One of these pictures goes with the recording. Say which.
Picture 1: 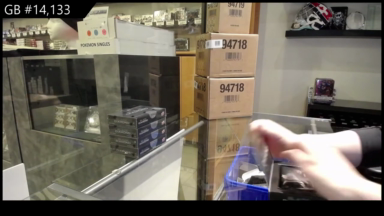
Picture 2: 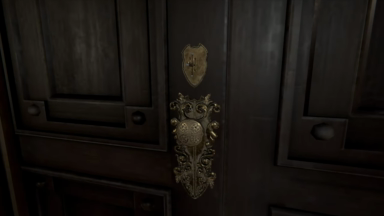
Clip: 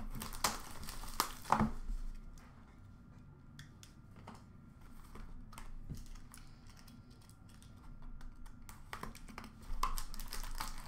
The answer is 1